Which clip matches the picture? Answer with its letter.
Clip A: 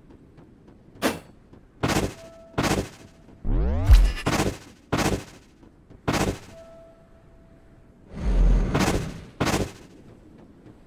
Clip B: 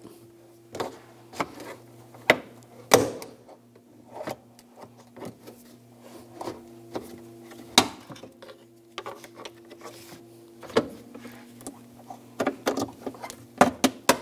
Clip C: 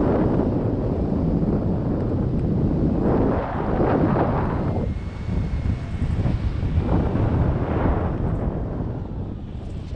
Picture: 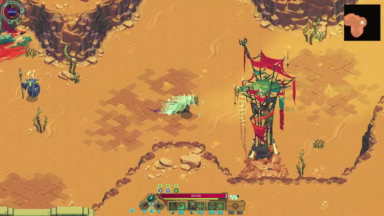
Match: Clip A